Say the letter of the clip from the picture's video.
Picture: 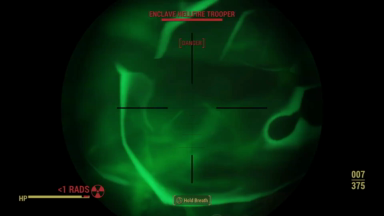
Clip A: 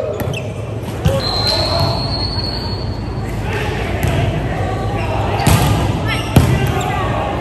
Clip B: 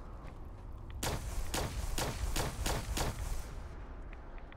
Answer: B